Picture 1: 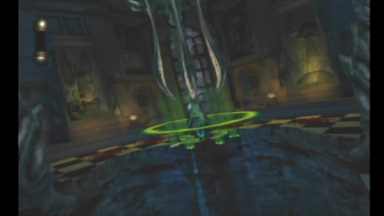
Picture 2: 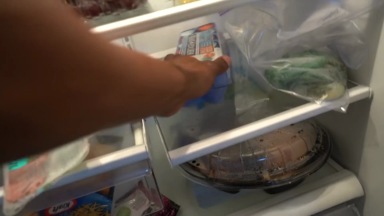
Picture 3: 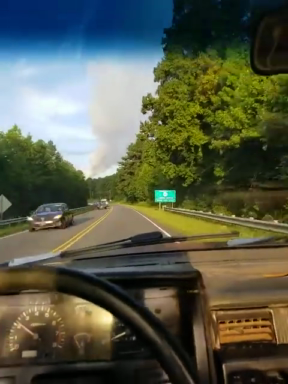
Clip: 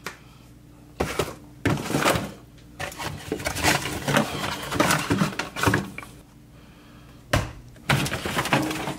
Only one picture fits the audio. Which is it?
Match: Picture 2